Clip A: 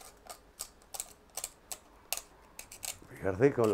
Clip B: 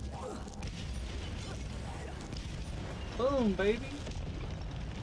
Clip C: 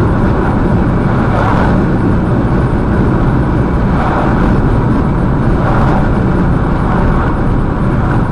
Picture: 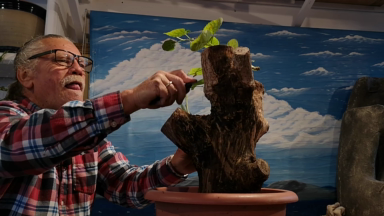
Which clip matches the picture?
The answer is A